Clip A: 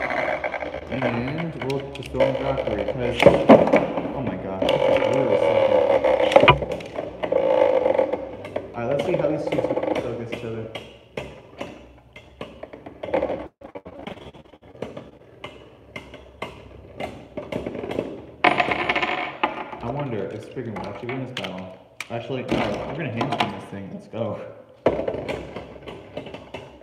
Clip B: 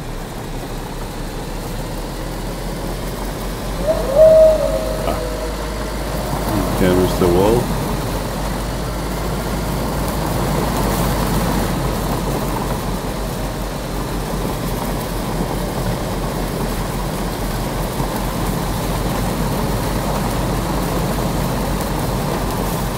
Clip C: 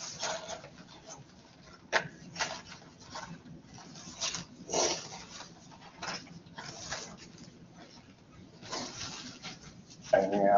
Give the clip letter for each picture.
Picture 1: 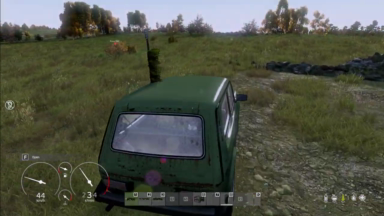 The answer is B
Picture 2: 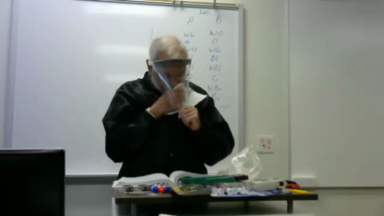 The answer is C